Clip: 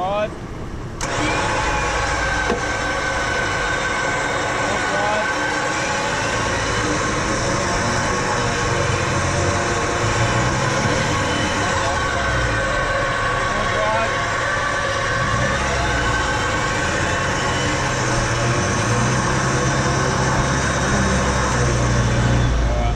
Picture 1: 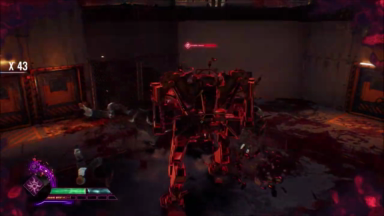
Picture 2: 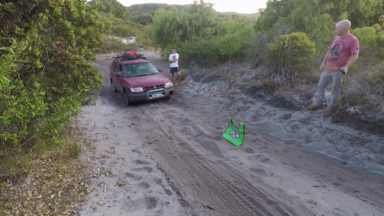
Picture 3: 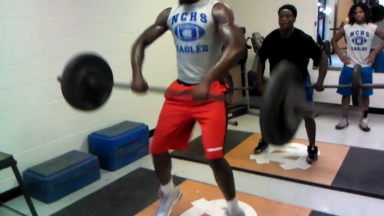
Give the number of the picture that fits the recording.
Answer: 2